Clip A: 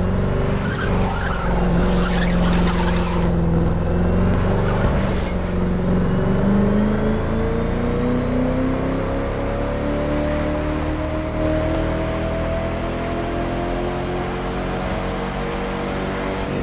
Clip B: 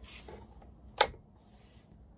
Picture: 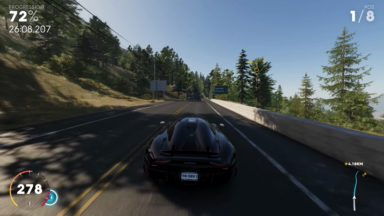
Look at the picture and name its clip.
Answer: A